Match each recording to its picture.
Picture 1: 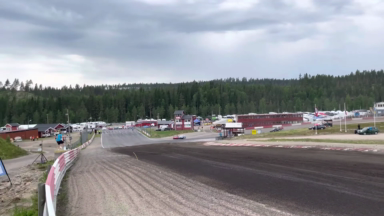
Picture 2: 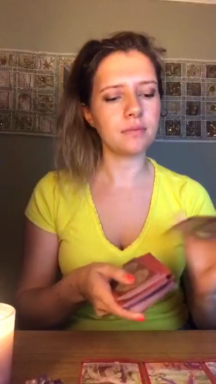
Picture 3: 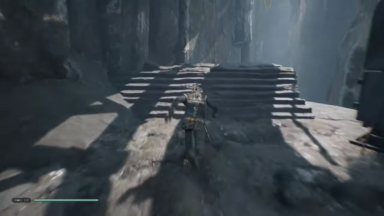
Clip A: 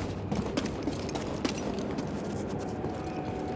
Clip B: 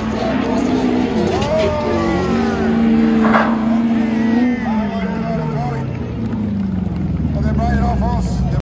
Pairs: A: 3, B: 1